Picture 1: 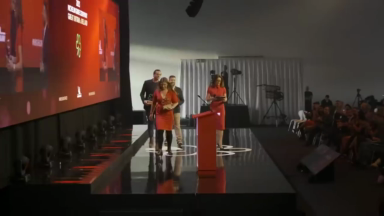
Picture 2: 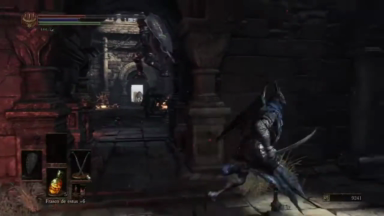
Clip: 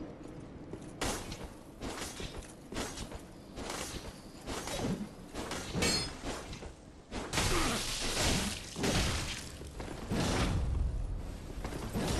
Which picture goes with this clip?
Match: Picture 2